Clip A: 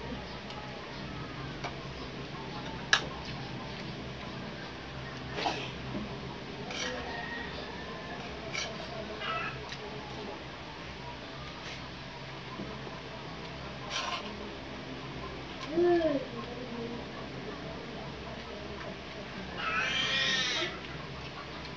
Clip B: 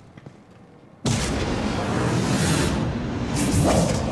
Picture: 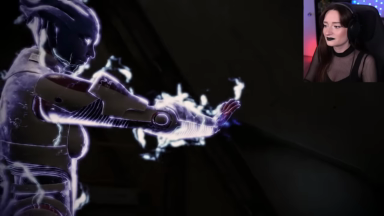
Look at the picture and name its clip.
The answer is B